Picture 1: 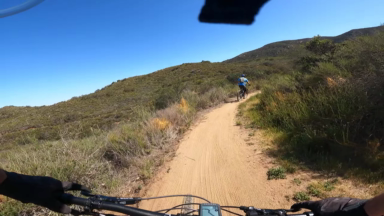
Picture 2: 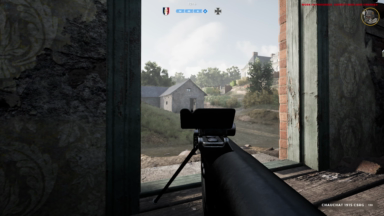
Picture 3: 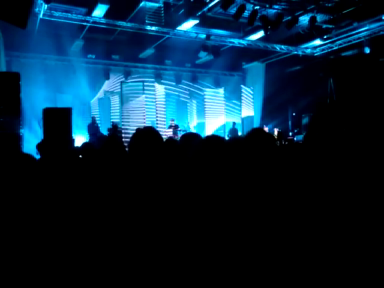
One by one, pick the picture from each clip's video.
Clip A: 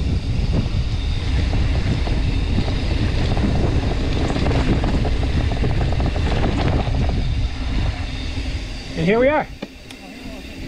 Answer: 1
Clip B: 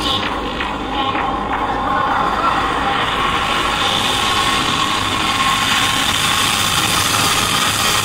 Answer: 3